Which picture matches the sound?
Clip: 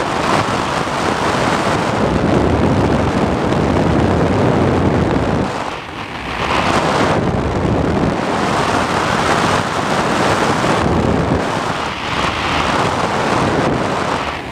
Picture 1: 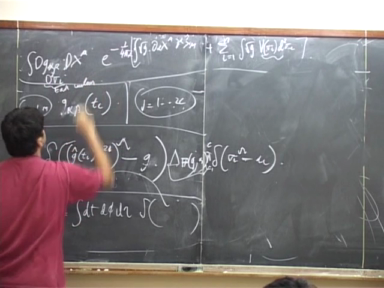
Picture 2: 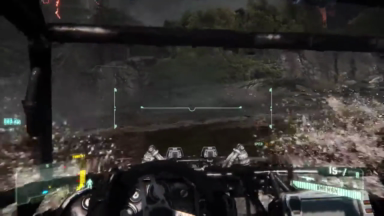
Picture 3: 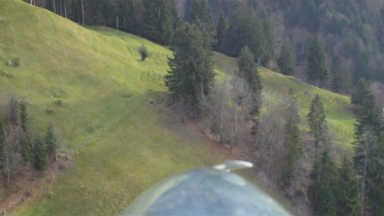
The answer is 3